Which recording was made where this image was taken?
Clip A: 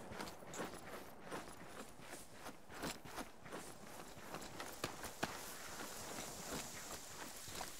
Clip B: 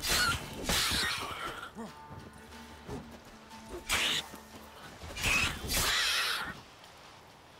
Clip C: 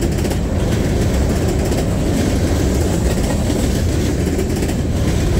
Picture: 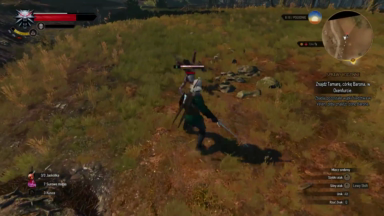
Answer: B